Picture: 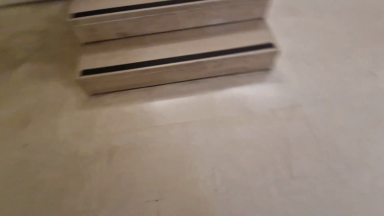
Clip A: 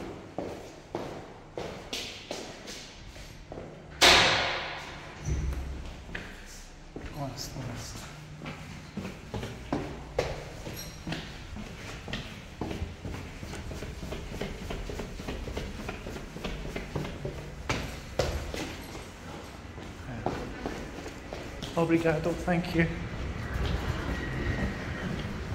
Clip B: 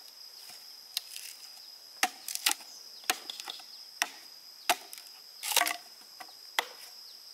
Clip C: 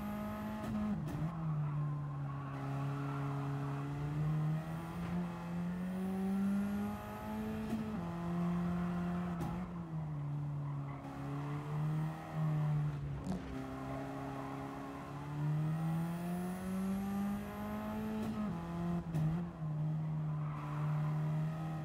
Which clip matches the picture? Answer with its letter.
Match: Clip A